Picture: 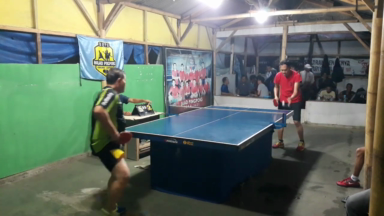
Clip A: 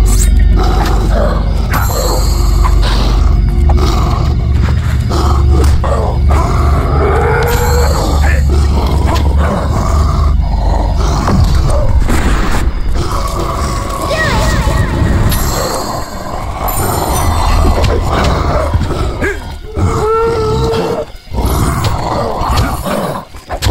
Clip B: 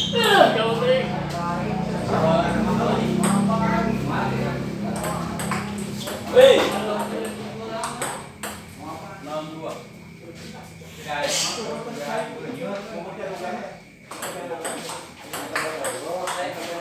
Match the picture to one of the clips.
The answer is B